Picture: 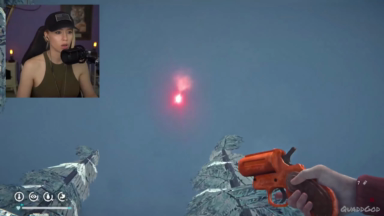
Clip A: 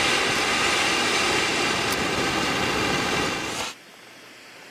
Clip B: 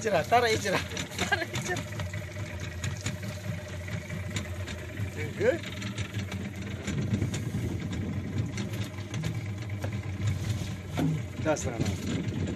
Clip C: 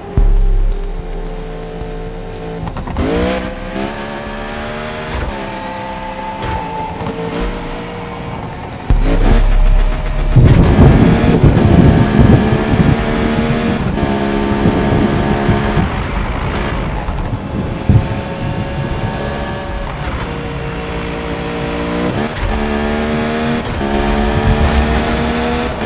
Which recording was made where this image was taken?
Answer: A